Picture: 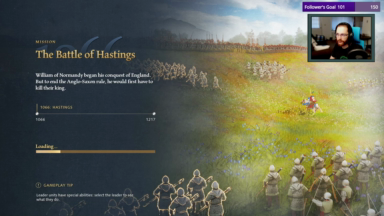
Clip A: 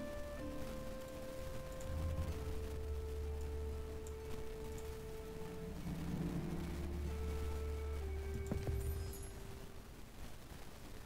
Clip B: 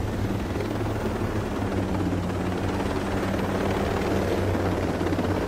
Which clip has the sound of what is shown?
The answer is A